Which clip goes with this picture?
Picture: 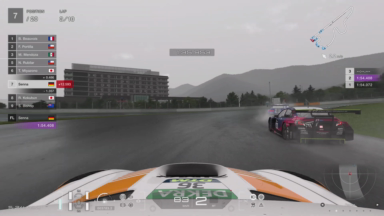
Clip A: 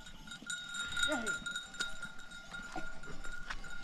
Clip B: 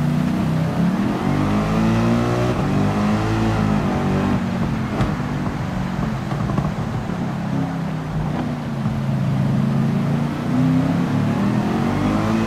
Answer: B